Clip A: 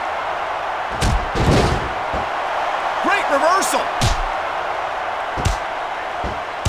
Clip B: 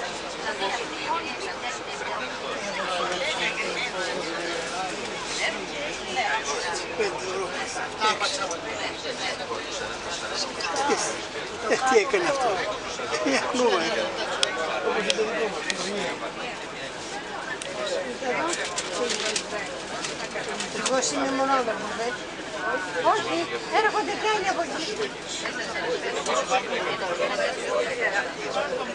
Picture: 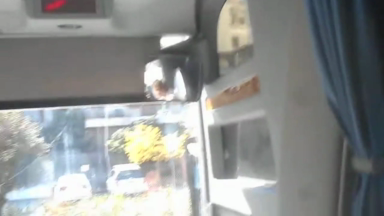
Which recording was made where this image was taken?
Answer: B